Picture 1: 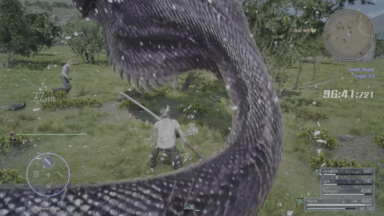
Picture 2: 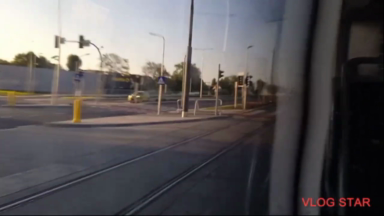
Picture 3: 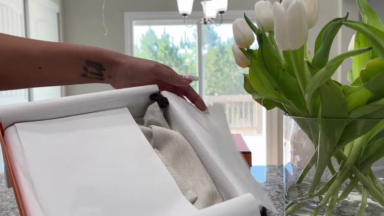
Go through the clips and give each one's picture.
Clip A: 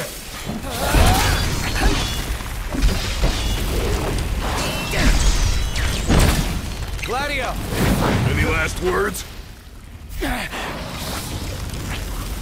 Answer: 1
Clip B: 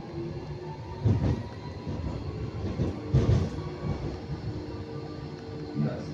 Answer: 2